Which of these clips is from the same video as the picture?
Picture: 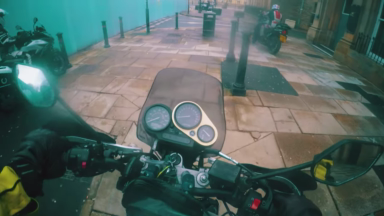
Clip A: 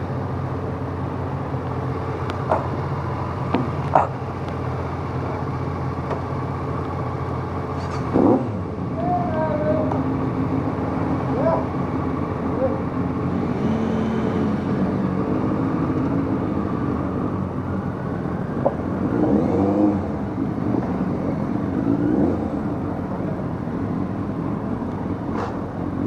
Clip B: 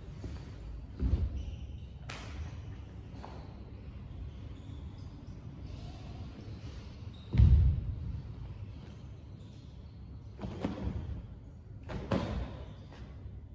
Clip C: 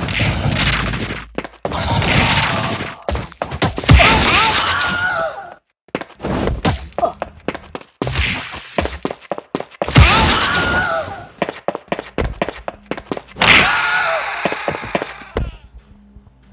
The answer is A